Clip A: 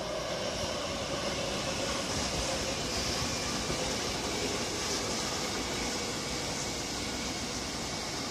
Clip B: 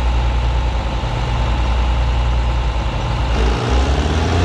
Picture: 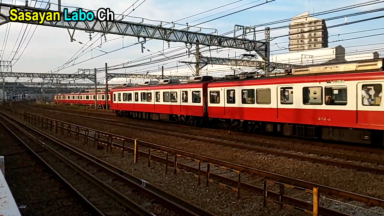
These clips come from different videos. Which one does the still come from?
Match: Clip A